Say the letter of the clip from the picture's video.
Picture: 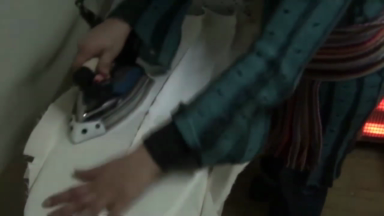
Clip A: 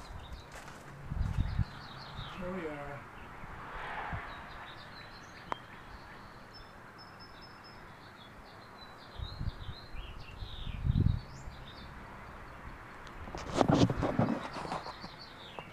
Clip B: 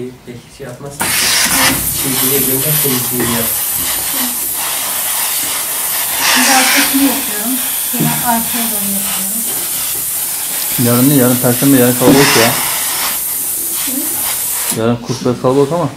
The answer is B